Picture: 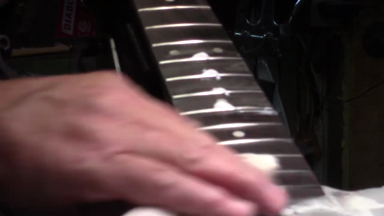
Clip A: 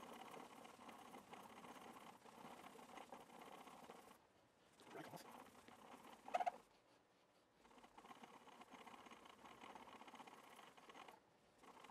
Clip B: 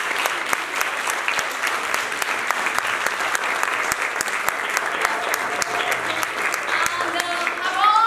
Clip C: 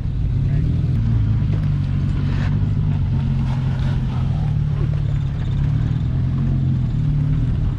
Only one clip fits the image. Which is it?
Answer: A